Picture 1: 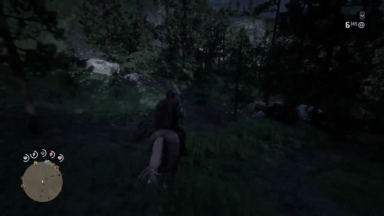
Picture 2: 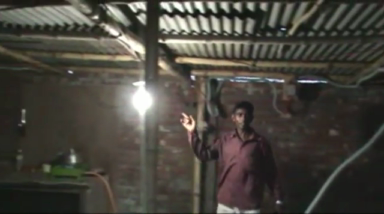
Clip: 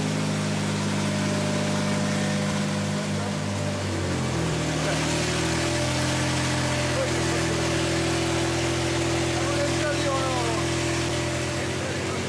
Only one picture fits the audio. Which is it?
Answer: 2